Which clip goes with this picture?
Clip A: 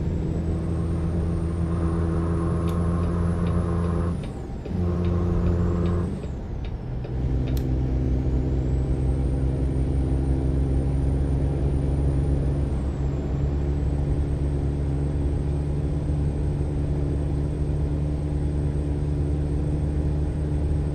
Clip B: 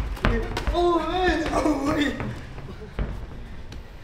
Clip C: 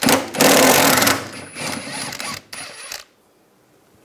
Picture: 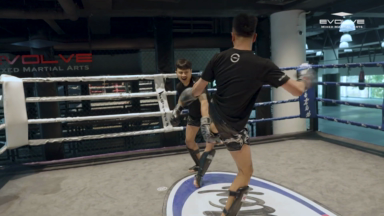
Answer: B